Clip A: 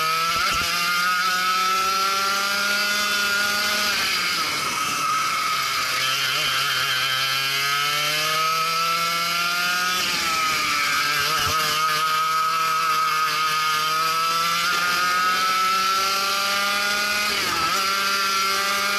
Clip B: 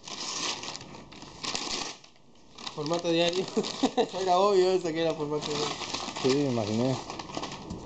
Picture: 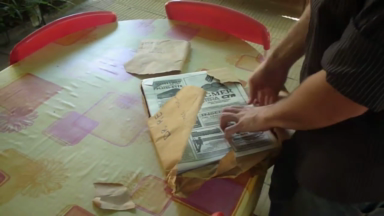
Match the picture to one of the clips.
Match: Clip B